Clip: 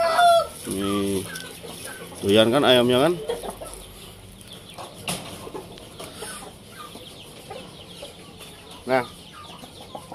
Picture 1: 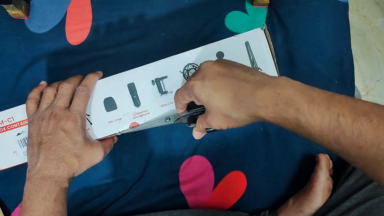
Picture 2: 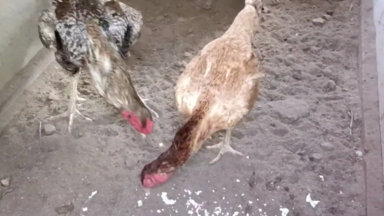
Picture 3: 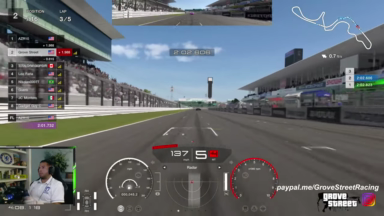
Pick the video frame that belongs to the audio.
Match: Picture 2